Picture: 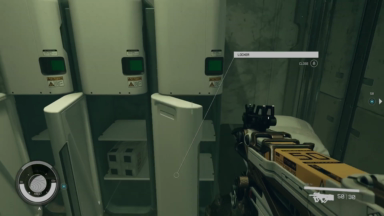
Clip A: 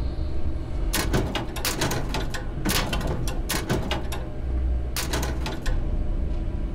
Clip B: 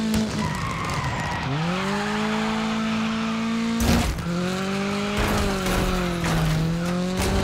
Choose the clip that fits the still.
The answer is A